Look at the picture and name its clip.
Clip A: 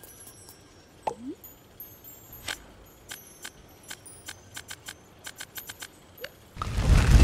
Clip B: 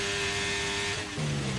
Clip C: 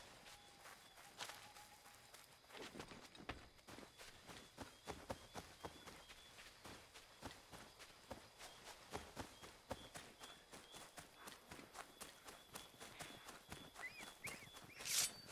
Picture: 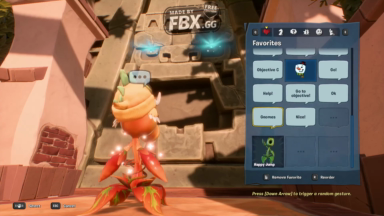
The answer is A